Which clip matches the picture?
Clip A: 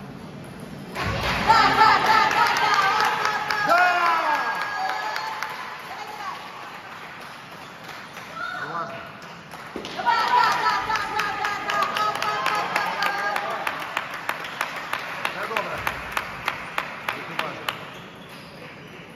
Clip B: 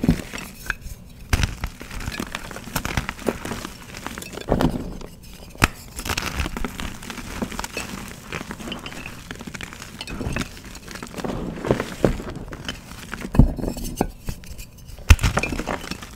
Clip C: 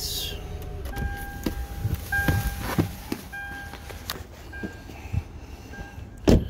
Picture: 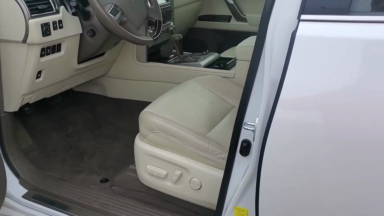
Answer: C